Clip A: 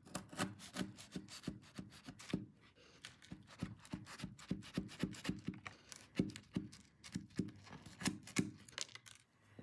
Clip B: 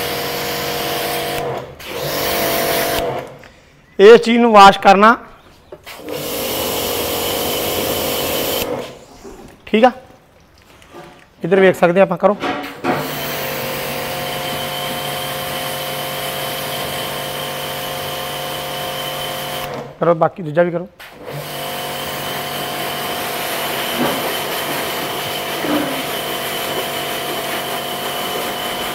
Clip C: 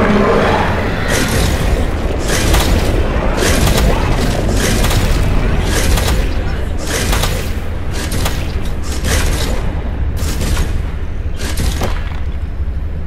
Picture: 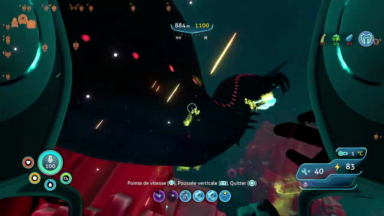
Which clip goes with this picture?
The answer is C